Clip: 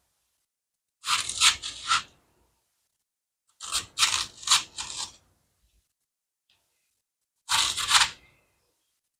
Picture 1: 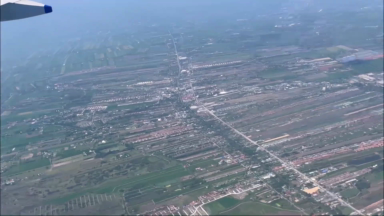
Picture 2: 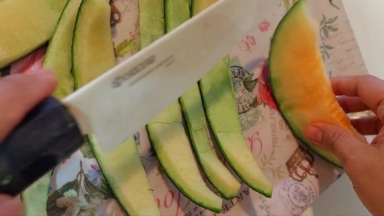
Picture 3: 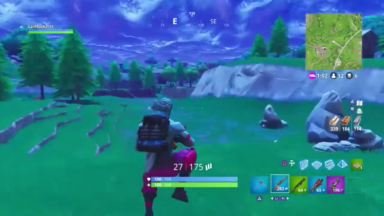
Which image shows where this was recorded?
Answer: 2